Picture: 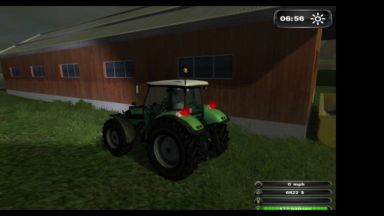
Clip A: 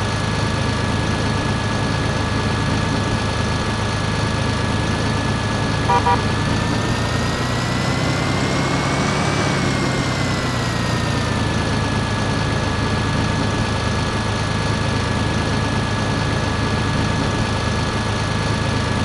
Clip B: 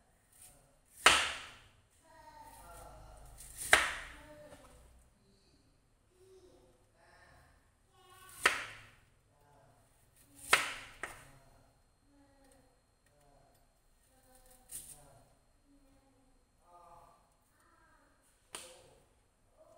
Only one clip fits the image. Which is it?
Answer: A